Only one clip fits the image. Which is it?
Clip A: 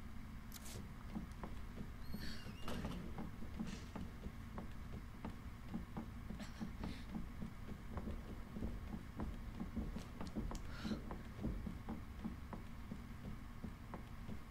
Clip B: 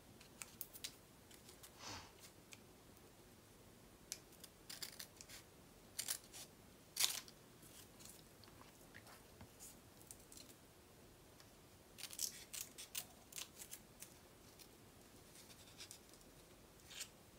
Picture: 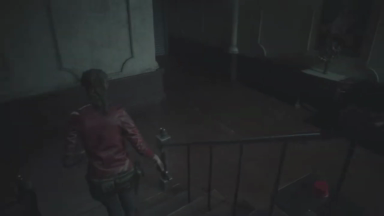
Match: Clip A